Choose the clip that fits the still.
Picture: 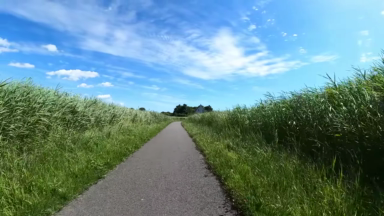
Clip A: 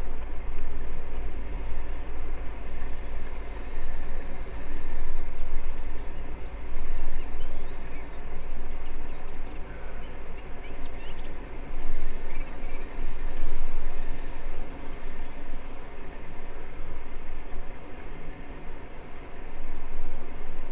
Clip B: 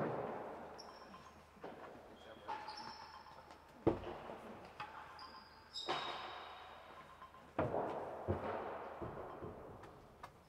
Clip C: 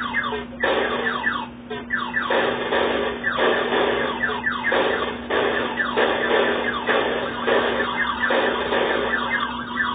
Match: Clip A